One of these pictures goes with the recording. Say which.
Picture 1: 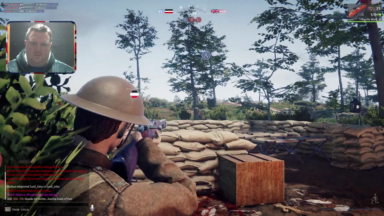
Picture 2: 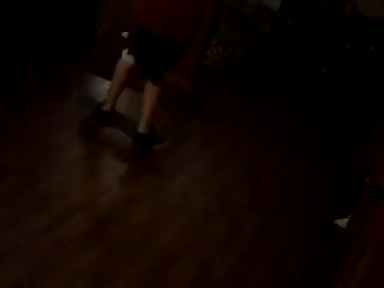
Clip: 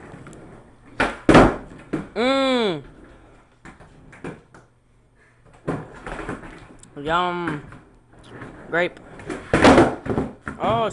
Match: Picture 2